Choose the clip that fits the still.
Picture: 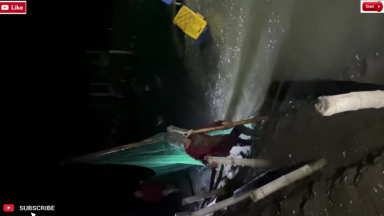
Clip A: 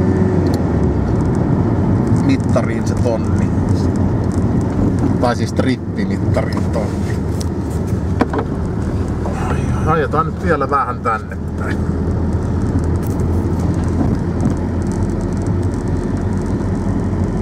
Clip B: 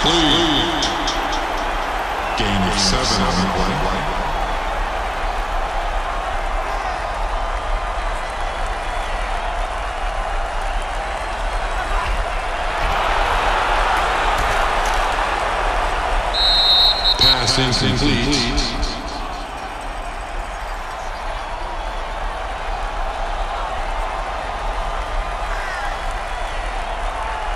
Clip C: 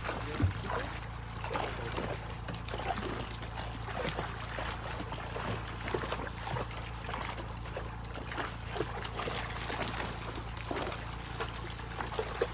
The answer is C